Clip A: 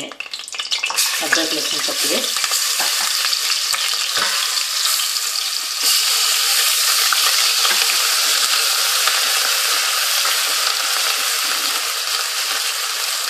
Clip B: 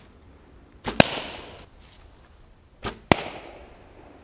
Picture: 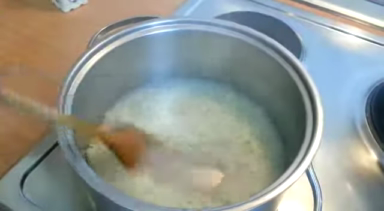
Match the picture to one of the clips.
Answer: A